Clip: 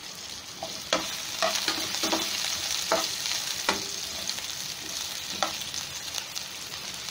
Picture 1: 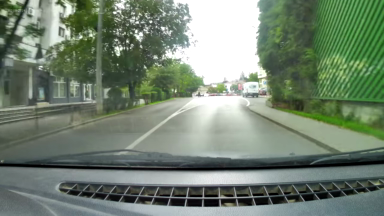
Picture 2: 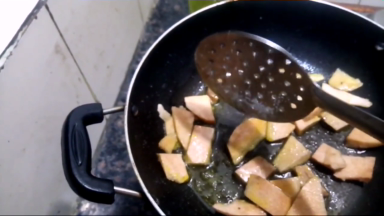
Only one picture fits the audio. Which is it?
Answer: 2